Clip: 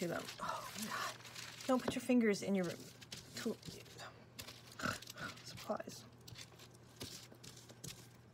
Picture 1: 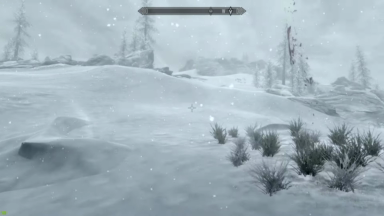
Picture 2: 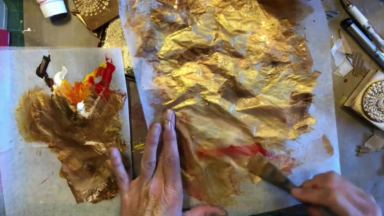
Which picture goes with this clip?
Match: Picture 2